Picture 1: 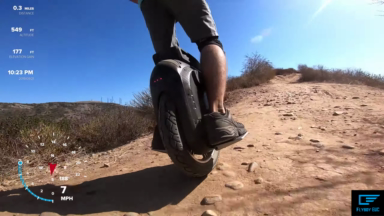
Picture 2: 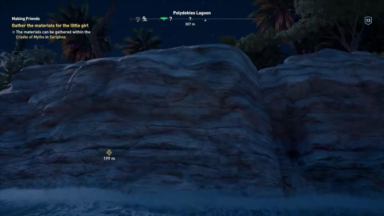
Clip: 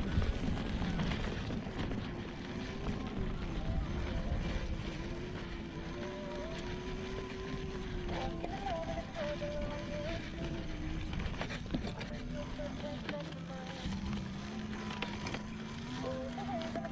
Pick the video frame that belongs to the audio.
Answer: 1